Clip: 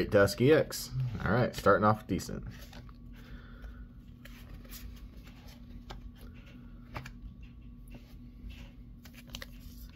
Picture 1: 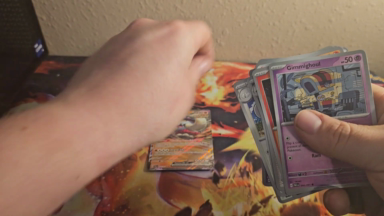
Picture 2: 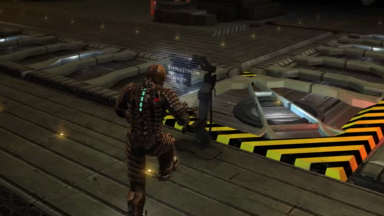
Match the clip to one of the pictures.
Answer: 1